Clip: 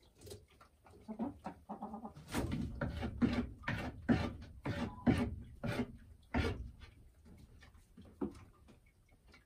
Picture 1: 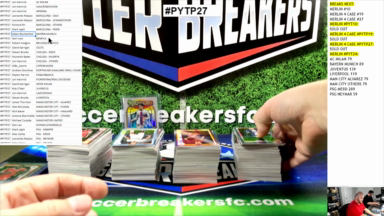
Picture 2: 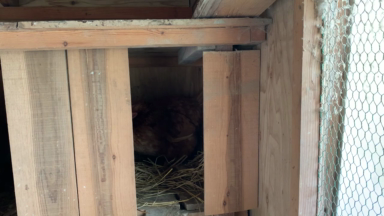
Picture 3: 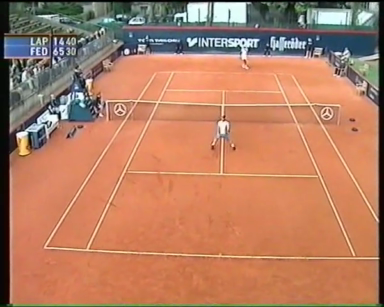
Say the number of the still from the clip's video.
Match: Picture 2